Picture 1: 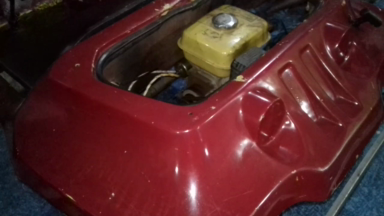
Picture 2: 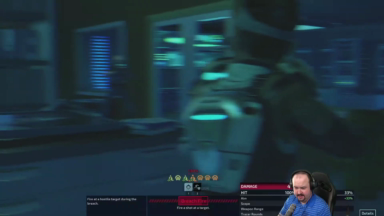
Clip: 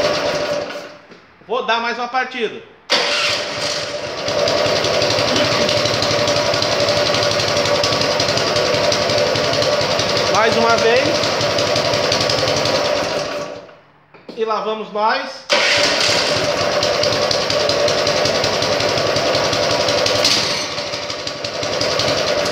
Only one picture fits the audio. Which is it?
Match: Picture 1